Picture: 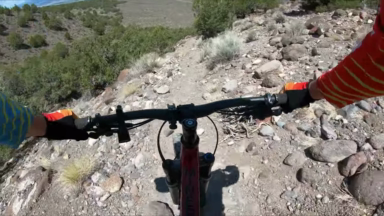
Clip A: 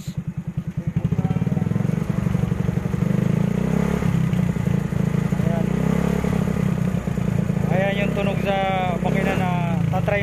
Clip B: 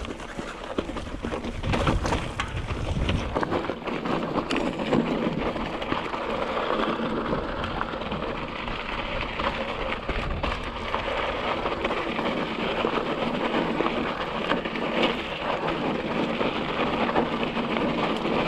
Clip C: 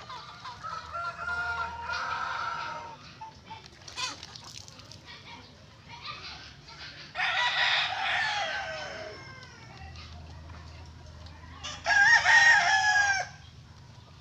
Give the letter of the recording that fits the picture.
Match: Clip B